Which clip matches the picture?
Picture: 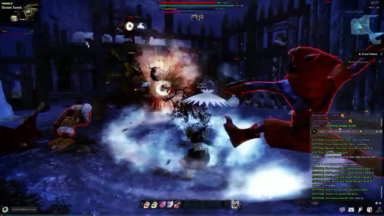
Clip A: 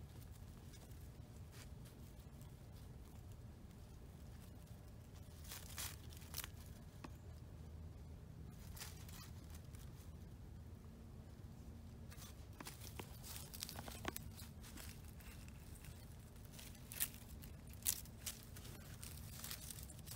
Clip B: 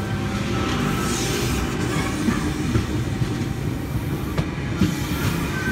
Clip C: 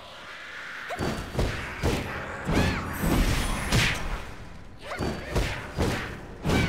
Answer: C